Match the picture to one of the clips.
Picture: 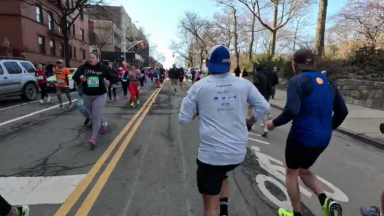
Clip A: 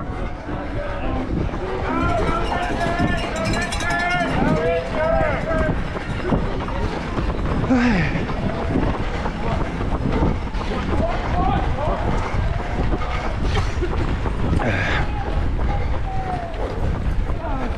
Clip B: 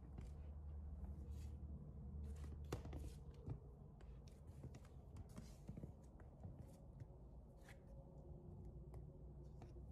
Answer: A